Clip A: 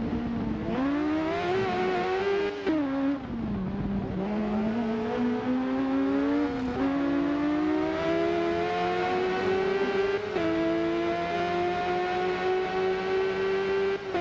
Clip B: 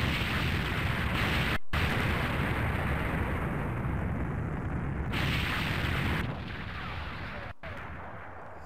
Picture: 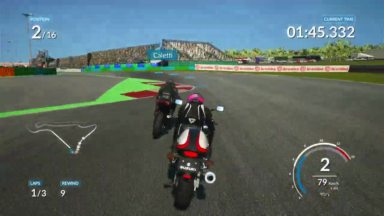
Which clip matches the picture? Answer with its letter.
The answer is A